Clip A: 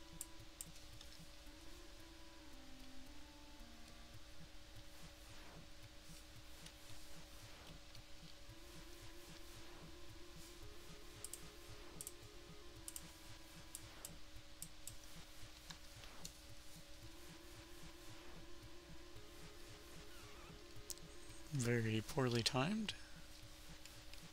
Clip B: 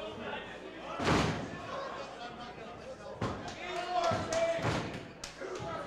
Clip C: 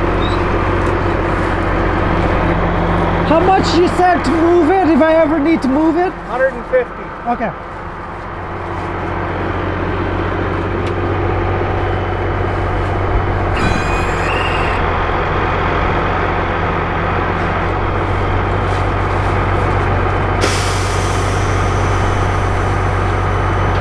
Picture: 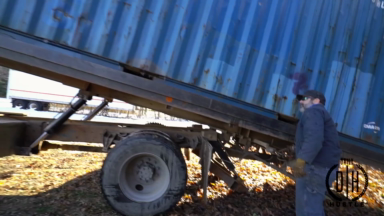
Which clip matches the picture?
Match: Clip C